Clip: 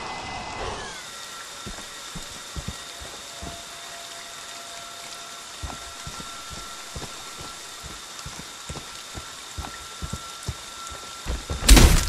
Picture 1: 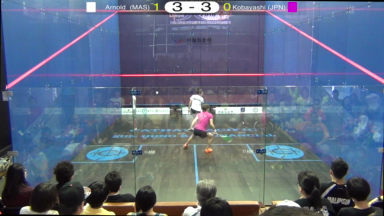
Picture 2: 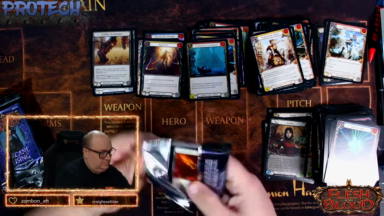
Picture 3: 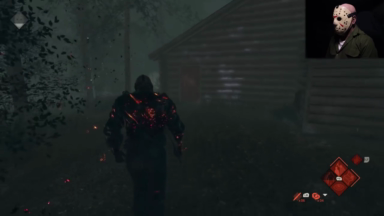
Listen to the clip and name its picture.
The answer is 3